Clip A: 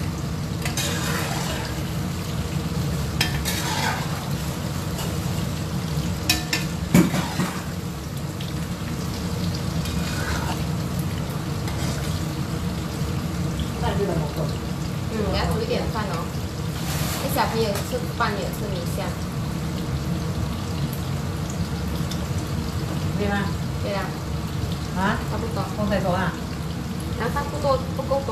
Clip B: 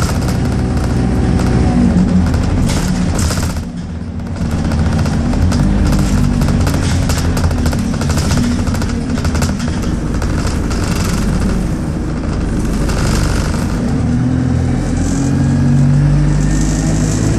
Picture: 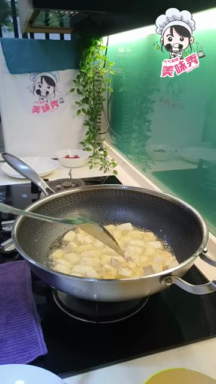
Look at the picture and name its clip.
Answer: A